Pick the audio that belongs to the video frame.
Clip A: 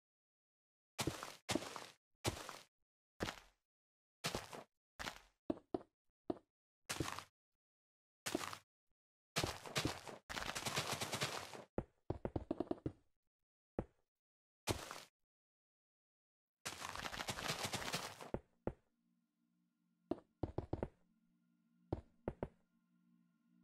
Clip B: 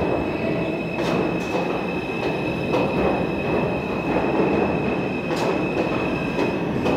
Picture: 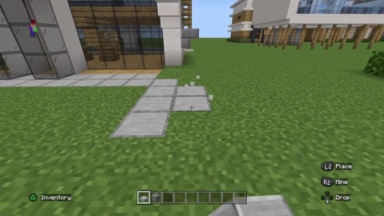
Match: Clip A